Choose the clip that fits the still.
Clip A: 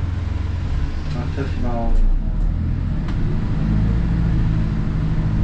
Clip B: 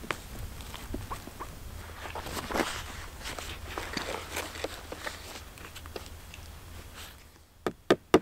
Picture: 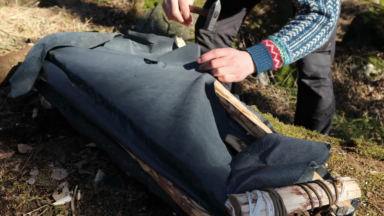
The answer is B